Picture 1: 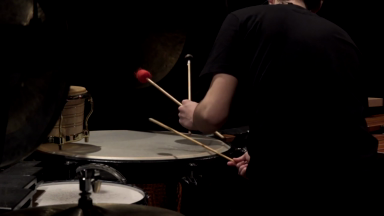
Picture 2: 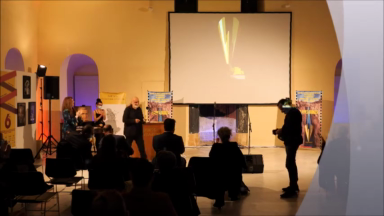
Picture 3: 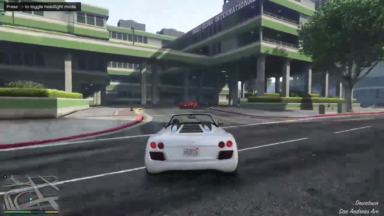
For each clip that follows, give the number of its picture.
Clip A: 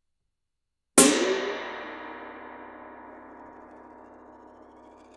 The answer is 1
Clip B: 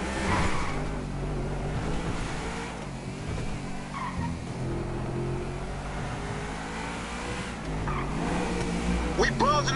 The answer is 3